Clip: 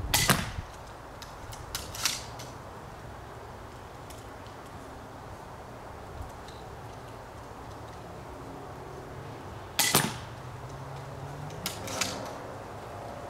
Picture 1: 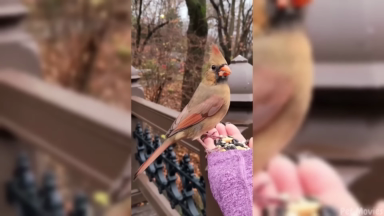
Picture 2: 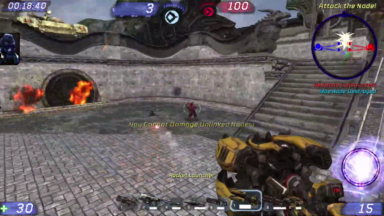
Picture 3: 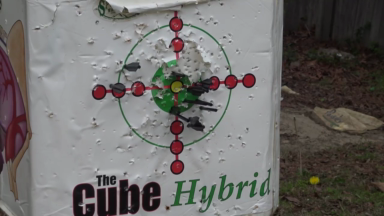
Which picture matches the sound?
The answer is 3